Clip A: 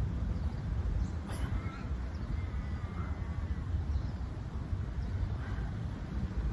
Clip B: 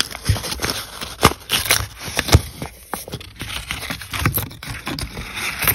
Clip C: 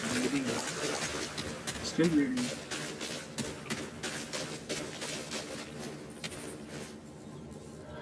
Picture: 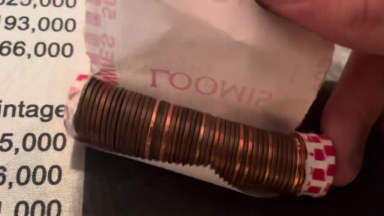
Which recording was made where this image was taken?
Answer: B